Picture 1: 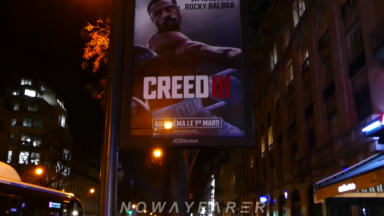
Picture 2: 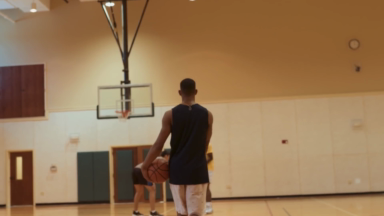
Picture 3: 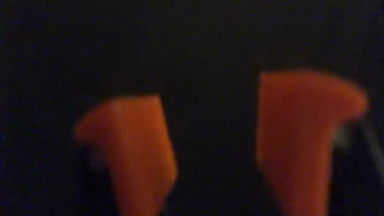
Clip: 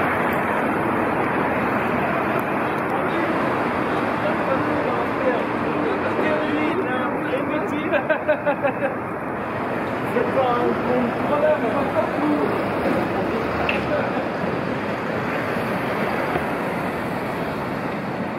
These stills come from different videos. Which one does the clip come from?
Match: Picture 1